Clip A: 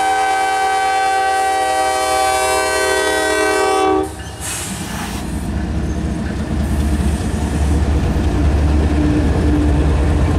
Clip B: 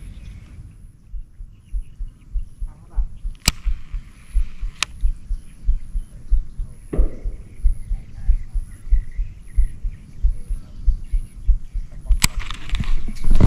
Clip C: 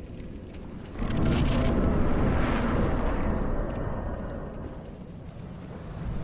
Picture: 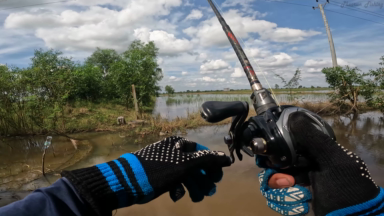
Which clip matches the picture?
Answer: B